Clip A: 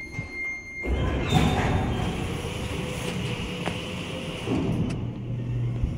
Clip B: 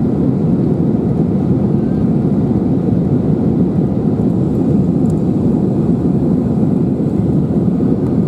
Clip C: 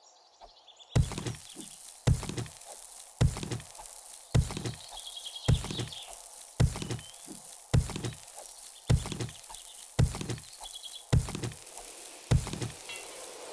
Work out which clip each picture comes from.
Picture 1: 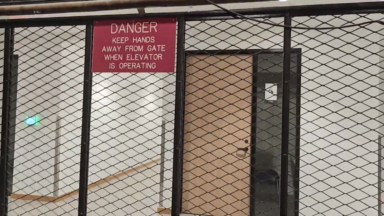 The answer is A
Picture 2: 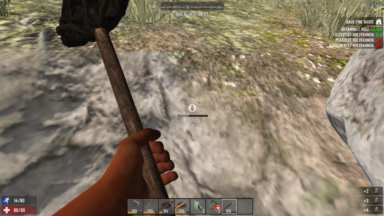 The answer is C